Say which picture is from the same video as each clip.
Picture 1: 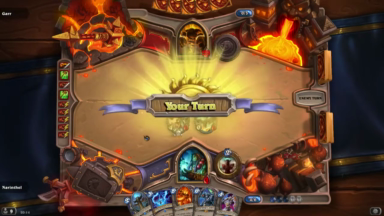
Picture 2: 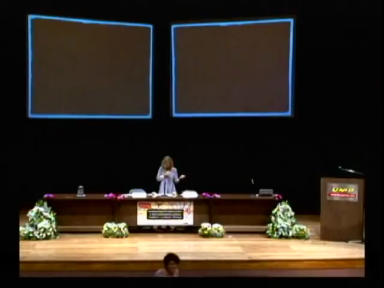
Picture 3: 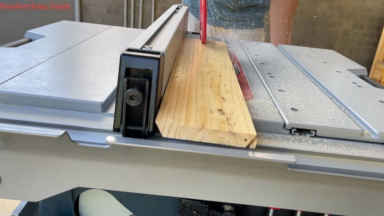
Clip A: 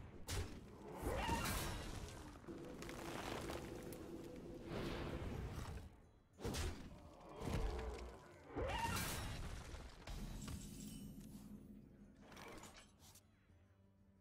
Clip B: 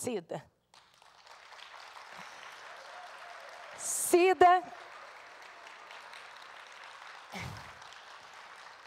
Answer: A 1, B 2